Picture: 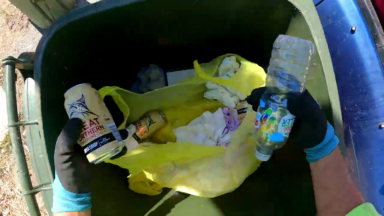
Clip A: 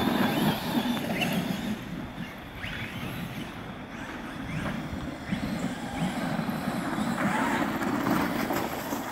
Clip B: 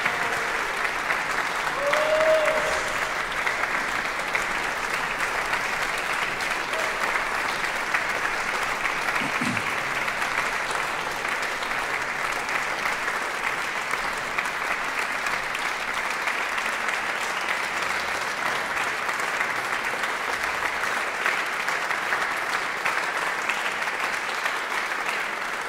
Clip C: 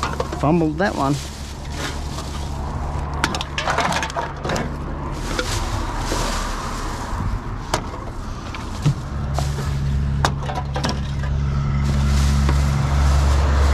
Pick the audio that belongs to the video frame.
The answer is C